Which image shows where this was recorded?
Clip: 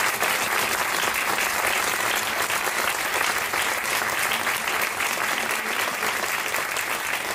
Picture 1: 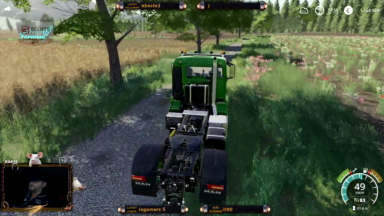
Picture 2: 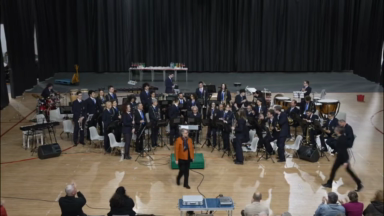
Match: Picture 2